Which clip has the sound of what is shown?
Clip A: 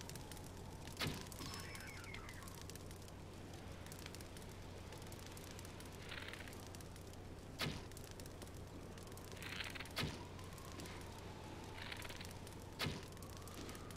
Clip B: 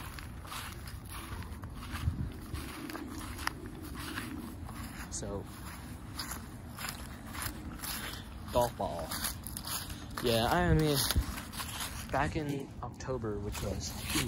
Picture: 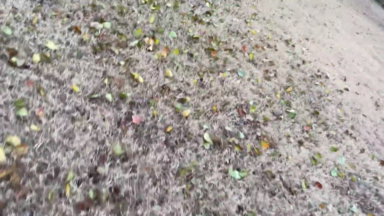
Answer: B